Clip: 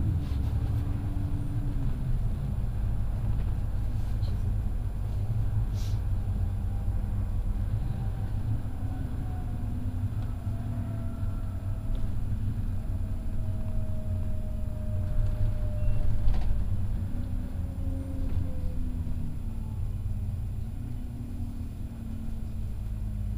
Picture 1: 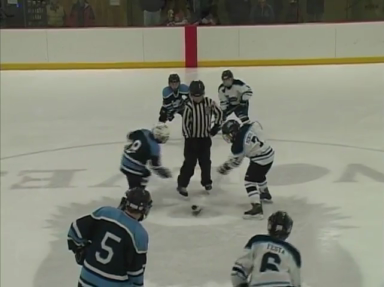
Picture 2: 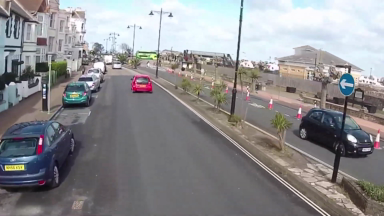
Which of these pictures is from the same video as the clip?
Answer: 2